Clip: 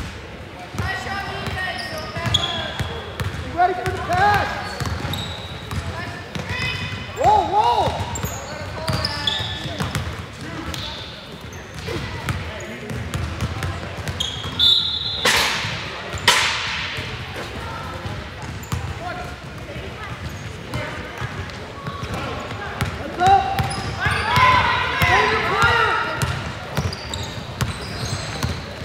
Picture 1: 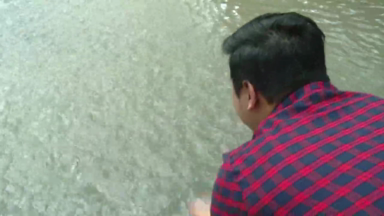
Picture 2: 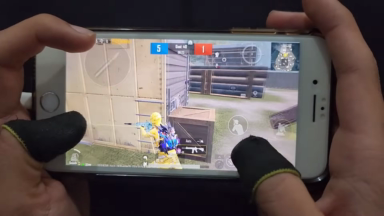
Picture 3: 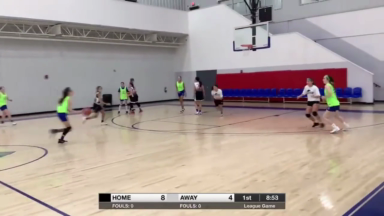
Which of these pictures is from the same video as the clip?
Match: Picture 3